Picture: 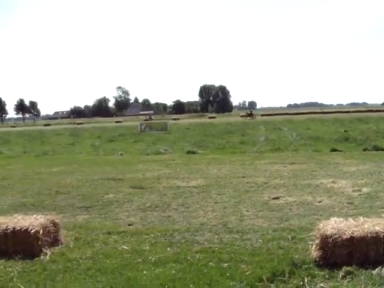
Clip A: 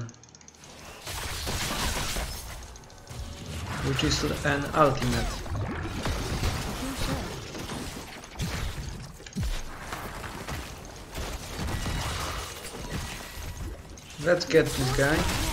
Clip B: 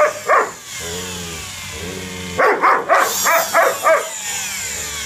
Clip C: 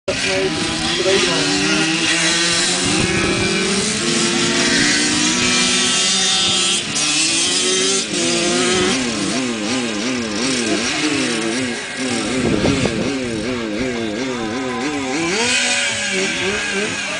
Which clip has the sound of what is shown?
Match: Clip C